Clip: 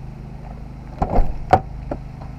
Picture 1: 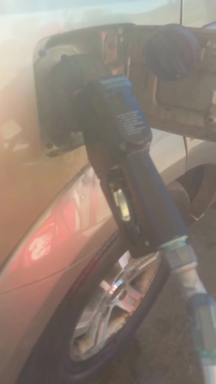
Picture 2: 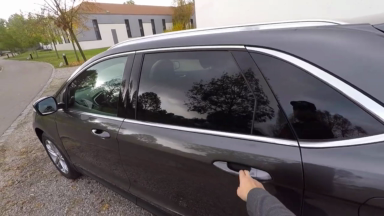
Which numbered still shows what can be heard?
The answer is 2